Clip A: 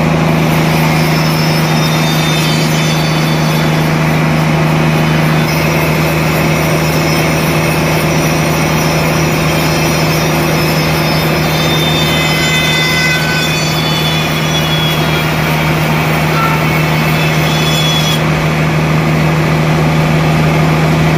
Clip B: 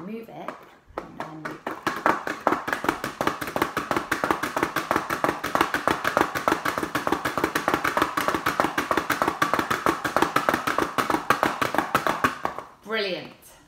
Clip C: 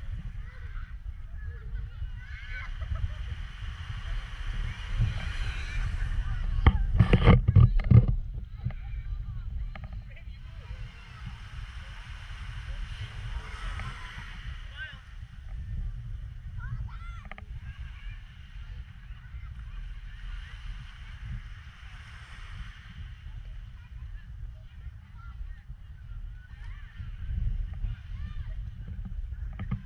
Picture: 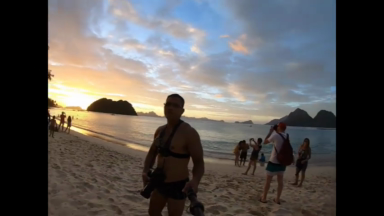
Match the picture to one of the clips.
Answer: C